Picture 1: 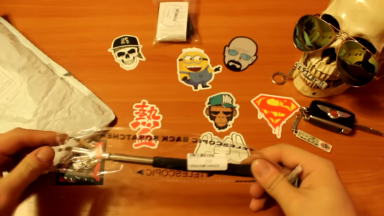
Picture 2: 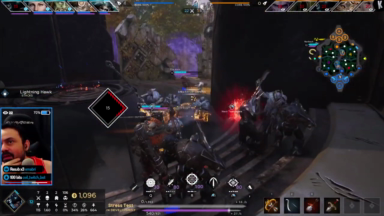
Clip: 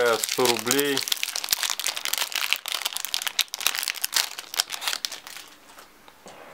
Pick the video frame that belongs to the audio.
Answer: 1